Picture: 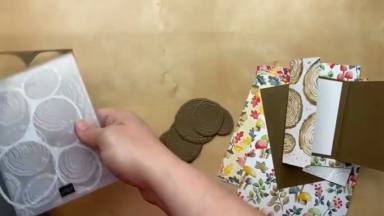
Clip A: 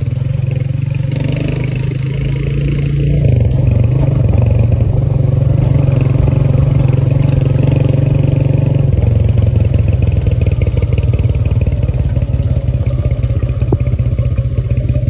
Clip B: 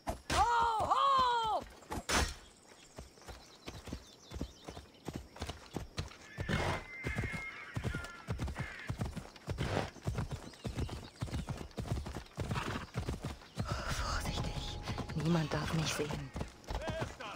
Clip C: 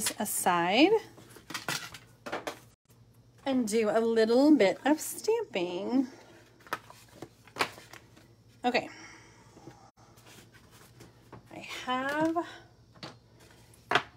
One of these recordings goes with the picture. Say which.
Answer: C